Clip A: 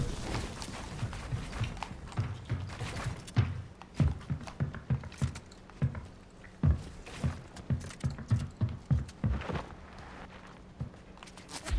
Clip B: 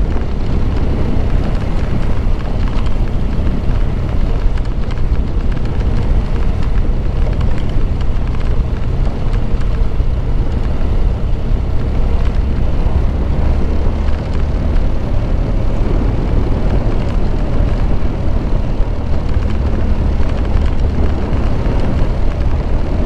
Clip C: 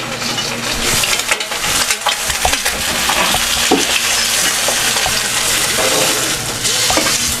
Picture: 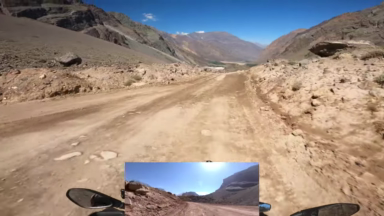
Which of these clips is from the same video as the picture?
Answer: B